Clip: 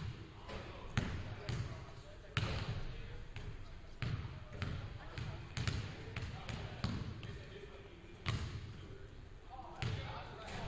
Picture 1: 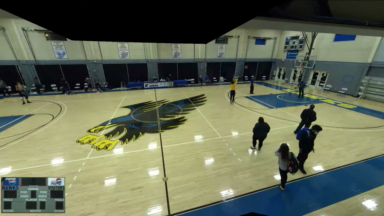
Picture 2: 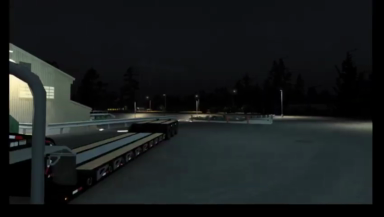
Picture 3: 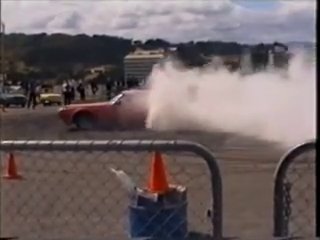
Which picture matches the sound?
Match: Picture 1